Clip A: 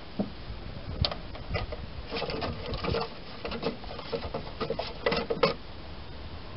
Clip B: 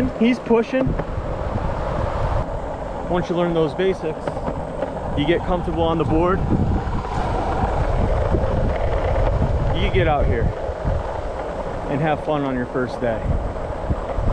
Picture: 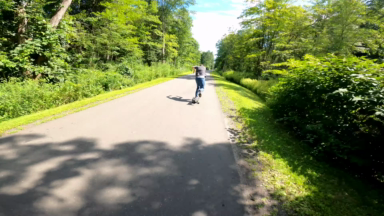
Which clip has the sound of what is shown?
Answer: B